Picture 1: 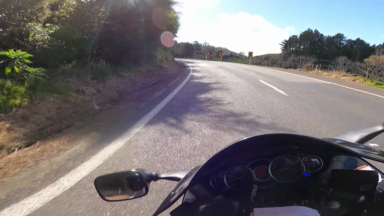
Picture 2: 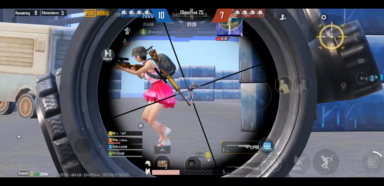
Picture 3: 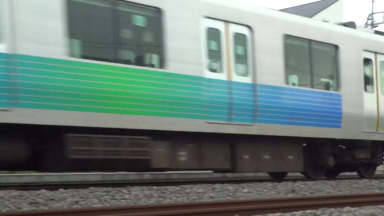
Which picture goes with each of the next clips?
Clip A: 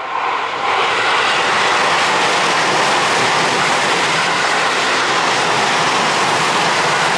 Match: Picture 3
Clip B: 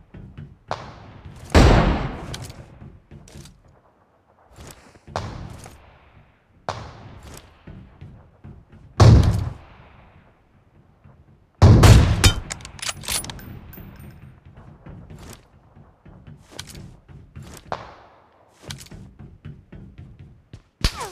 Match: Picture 2